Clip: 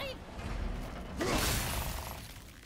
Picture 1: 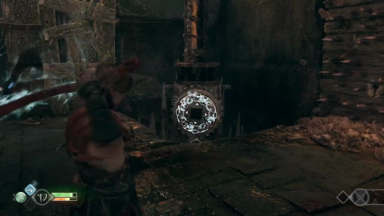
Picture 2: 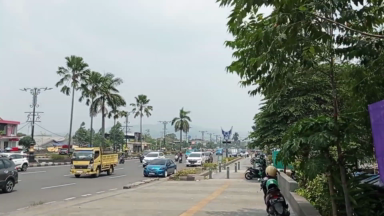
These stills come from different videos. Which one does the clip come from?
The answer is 1